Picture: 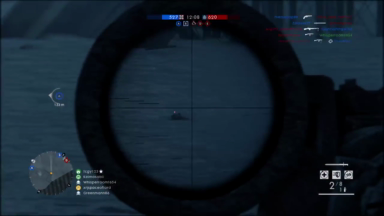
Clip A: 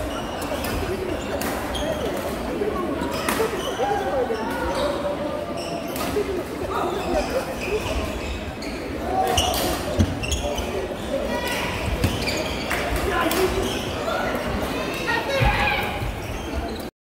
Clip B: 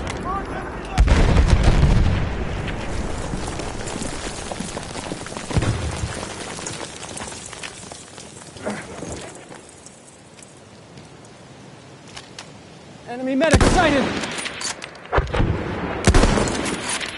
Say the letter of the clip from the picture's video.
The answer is B